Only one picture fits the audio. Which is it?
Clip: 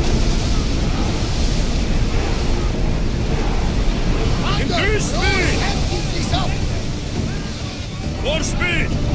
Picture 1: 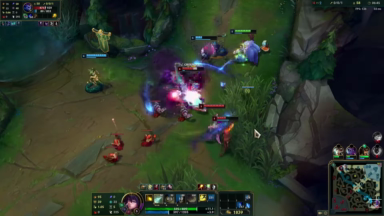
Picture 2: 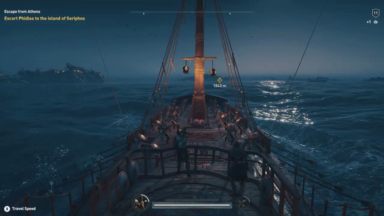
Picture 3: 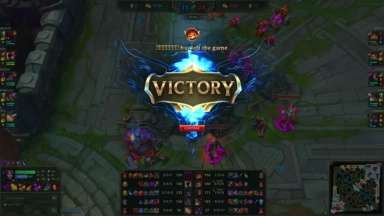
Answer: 2